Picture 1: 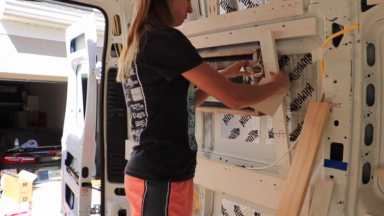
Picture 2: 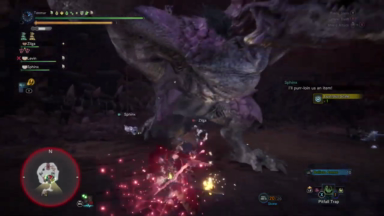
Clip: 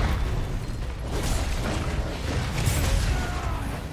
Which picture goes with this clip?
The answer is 2